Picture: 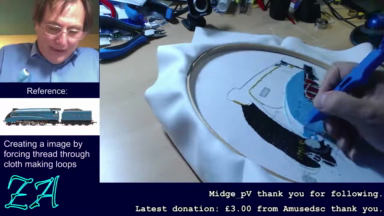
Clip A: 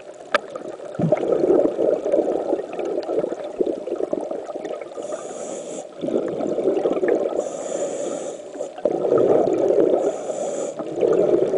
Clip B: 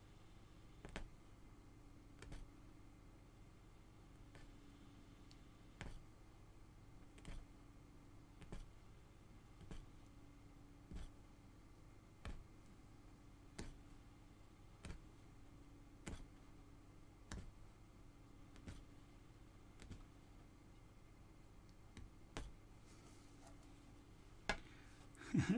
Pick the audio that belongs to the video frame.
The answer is B